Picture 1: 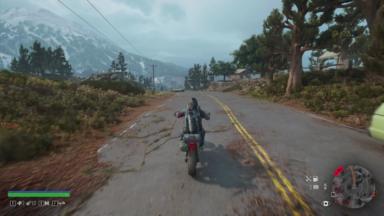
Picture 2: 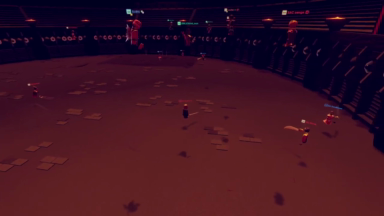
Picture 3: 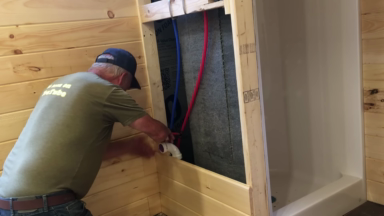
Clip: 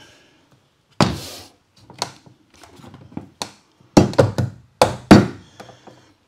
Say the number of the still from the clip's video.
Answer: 3